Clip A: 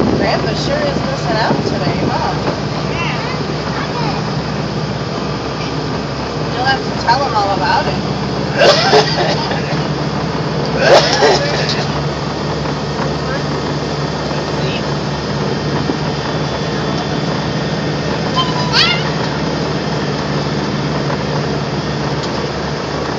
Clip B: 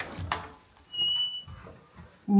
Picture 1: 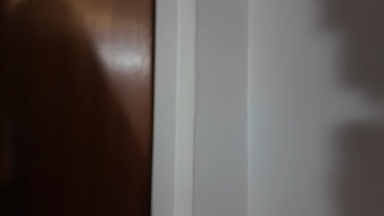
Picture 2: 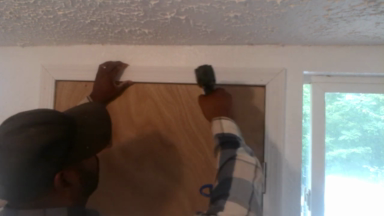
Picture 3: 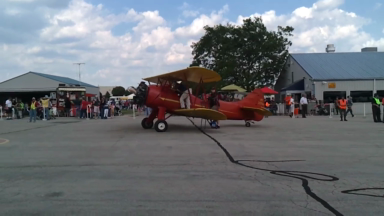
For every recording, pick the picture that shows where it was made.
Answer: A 3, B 1